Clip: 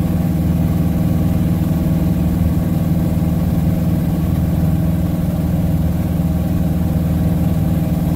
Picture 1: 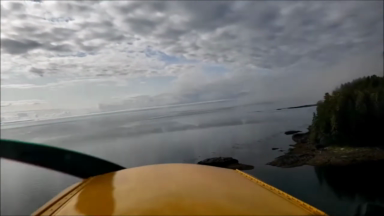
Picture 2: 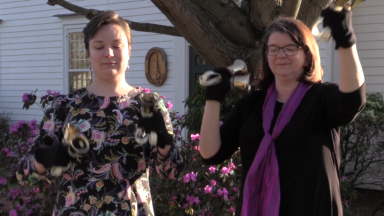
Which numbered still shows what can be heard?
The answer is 1